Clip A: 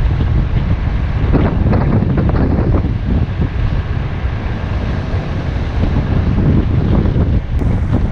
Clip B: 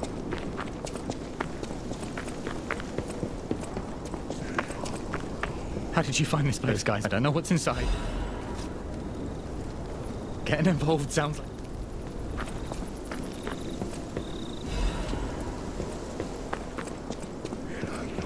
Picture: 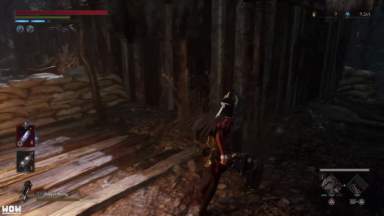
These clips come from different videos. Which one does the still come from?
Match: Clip B